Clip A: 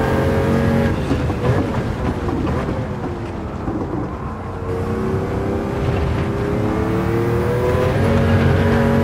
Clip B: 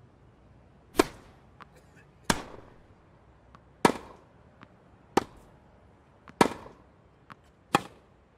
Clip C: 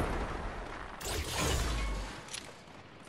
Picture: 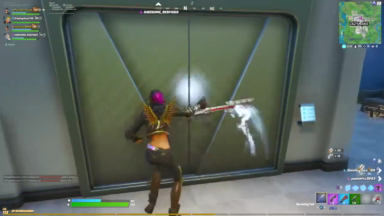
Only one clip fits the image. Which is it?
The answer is C